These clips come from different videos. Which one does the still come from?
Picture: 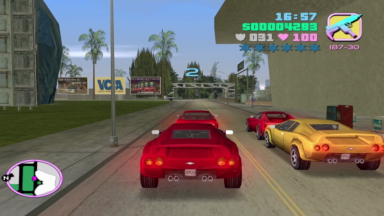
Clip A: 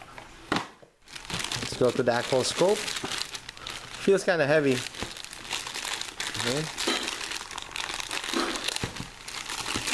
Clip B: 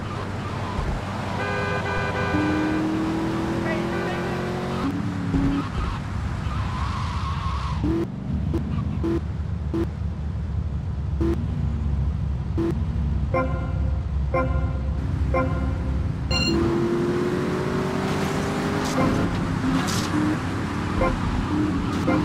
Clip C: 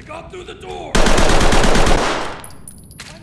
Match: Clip B